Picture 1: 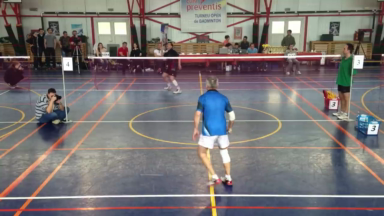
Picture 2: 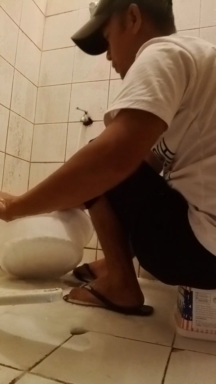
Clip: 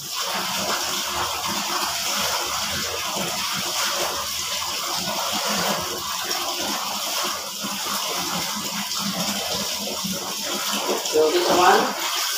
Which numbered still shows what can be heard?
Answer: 2